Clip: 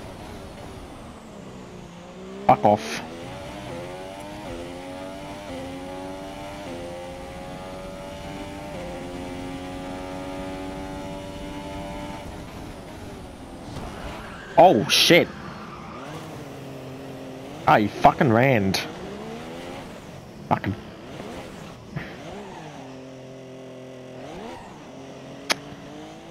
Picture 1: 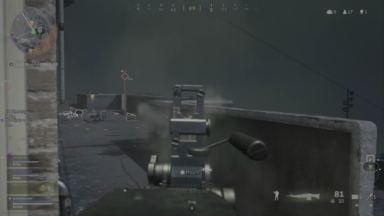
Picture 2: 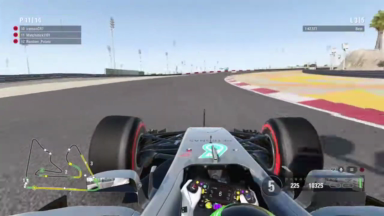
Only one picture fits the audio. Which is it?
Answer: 2